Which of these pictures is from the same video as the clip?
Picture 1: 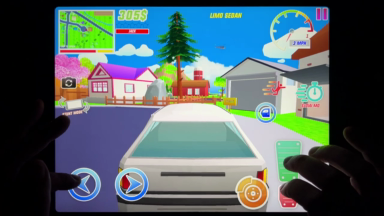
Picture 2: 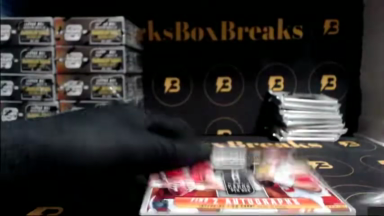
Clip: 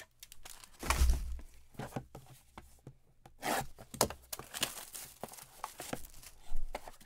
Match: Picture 2